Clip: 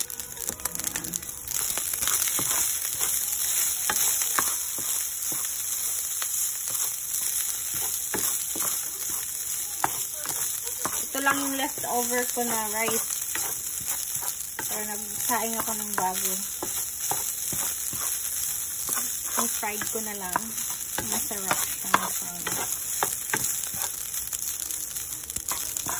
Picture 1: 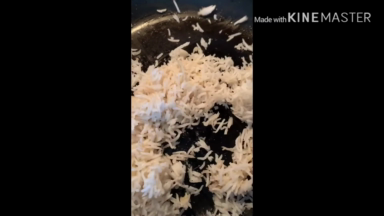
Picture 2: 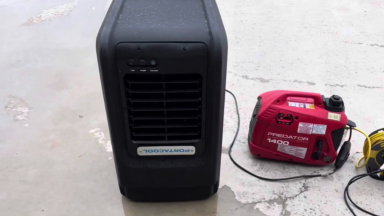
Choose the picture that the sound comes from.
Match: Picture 1